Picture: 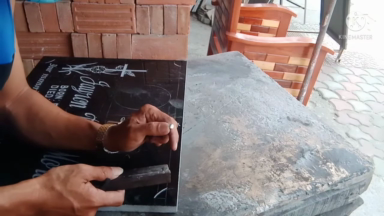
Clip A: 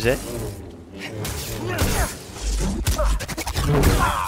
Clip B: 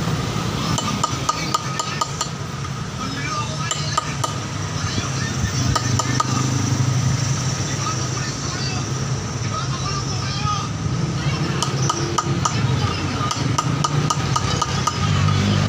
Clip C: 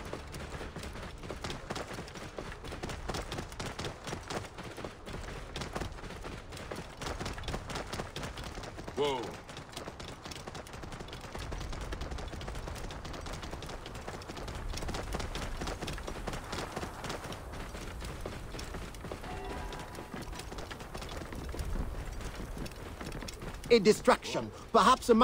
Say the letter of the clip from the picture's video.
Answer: B